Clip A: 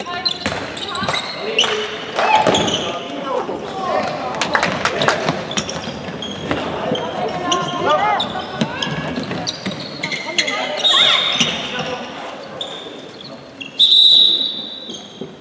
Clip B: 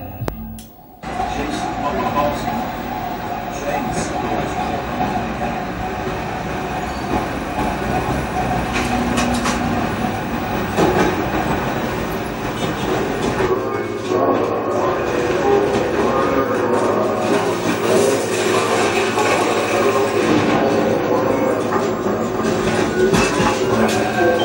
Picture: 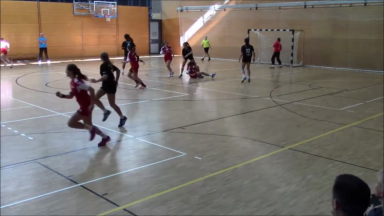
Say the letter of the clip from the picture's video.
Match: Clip A